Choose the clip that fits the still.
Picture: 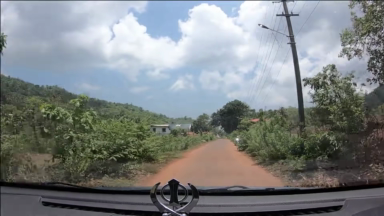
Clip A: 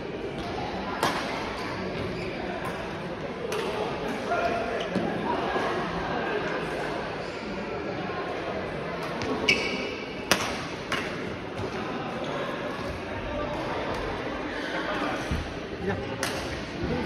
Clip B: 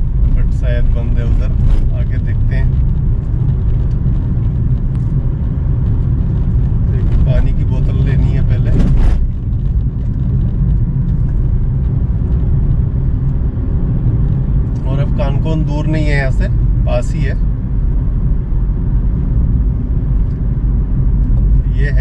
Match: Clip B